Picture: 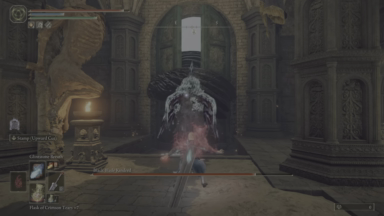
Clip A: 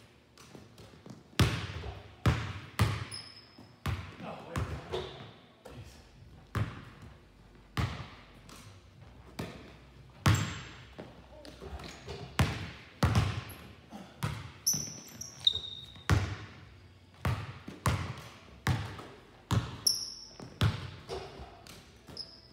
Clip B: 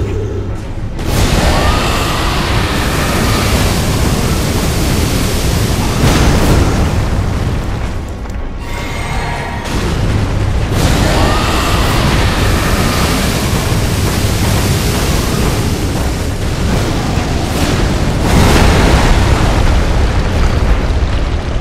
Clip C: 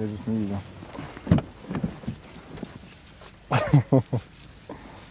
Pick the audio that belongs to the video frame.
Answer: B